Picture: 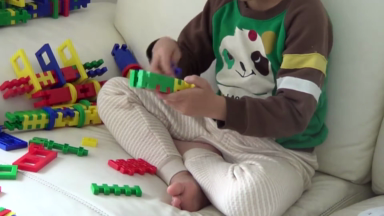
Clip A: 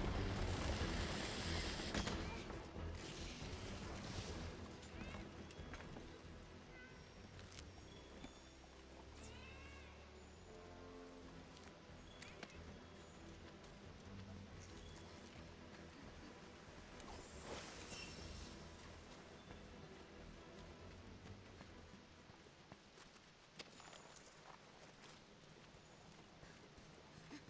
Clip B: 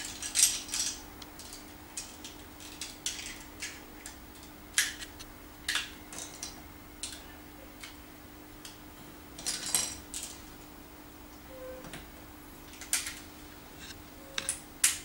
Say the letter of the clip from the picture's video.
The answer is B